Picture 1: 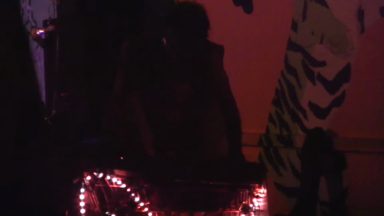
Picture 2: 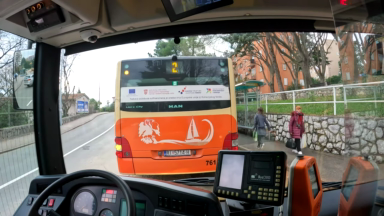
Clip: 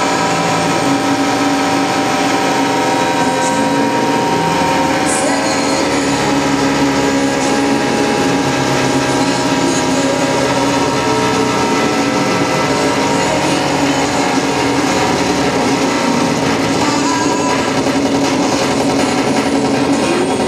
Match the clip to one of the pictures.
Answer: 1